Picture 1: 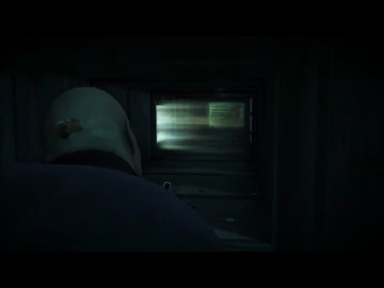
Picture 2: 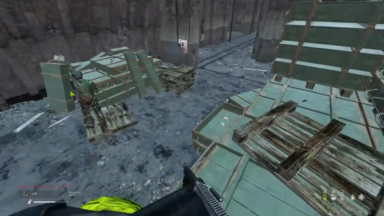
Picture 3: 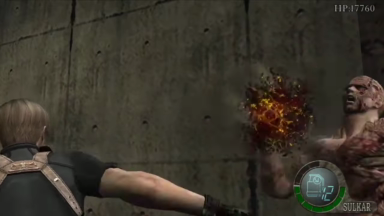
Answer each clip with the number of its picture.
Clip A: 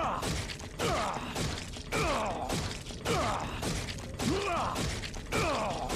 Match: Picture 3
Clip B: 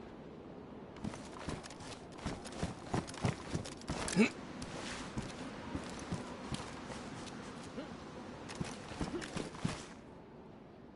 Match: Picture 2